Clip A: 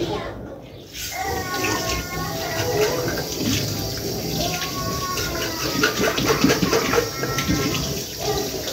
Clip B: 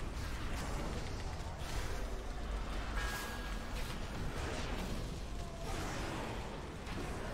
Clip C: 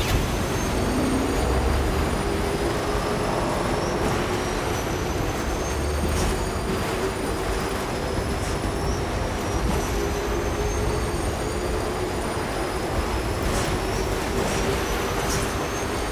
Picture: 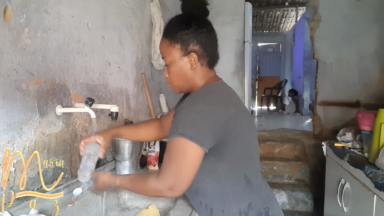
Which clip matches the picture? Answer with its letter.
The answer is A